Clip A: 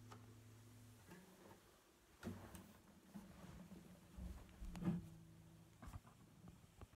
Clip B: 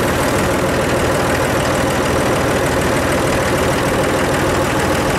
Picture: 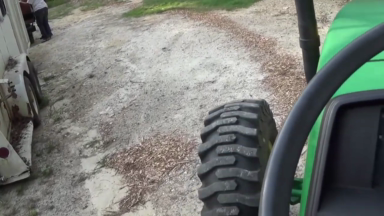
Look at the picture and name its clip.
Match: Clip B